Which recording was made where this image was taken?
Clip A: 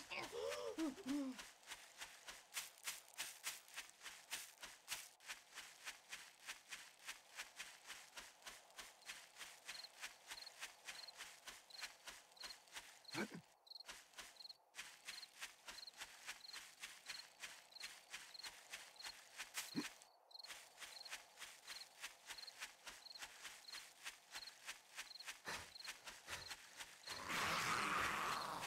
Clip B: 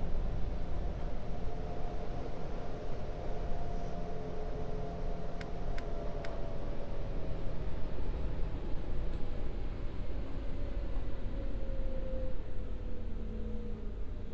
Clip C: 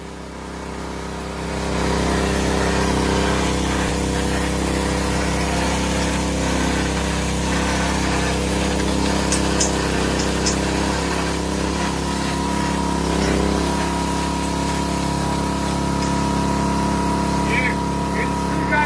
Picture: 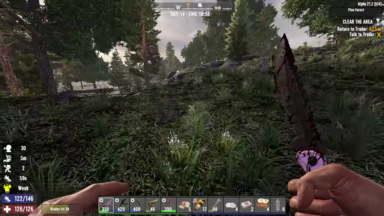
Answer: A